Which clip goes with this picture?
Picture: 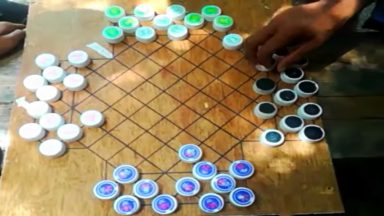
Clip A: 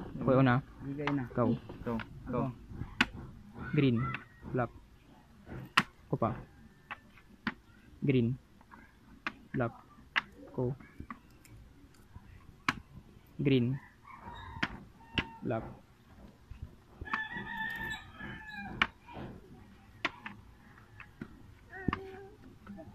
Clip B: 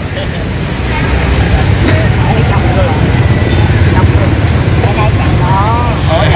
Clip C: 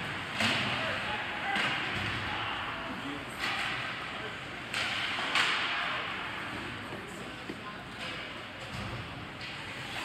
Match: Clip A